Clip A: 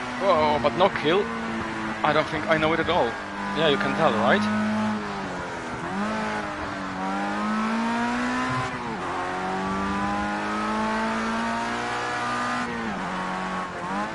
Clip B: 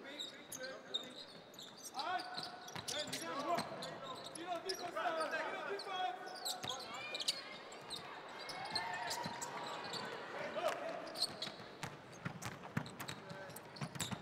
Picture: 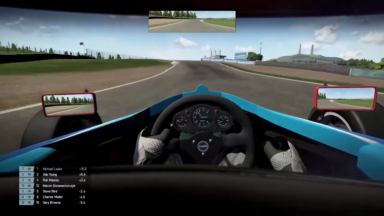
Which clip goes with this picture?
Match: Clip A